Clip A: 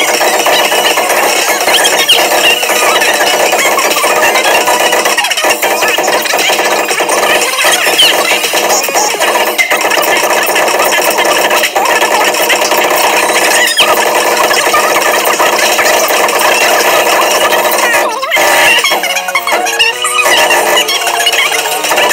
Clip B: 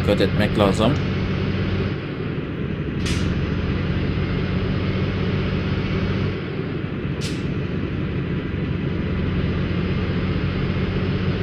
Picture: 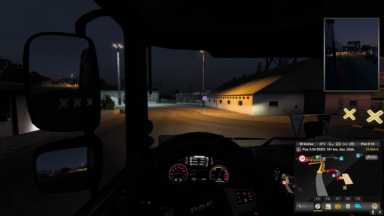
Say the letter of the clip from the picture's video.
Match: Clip B